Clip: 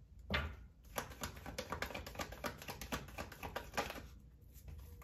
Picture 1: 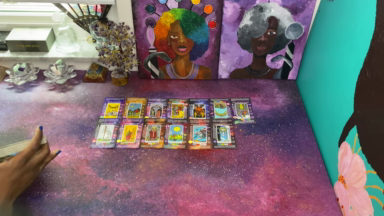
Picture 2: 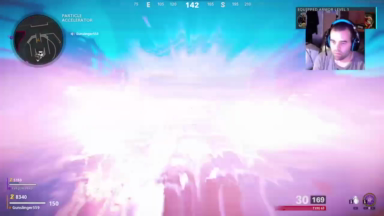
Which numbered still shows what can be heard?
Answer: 1